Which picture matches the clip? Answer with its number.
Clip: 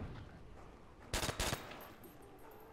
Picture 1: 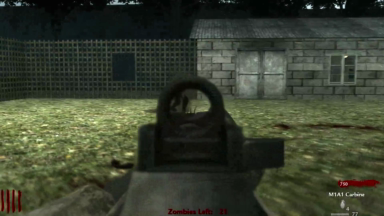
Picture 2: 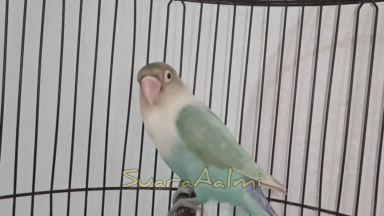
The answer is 1